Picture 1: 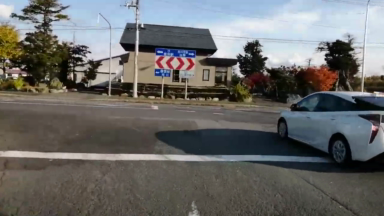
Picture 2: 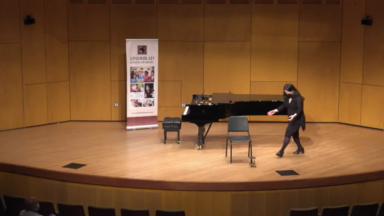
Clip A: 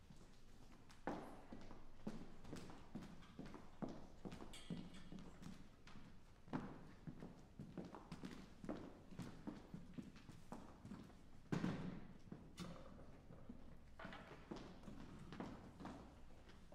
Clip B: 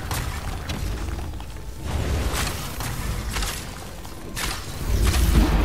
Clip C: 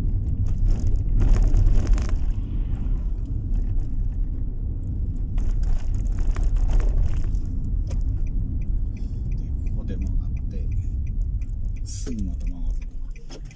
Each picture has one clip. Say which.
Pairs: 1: C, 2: A